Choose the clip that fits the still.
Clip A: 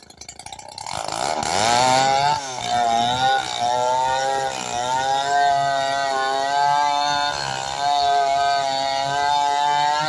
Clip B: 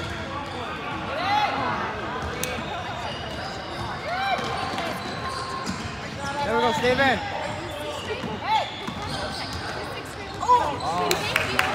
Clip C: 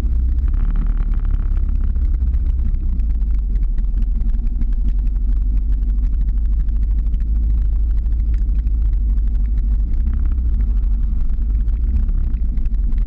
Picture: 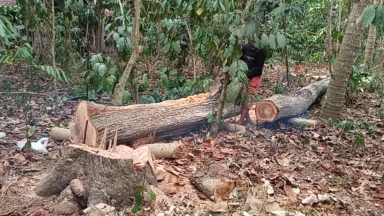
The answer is A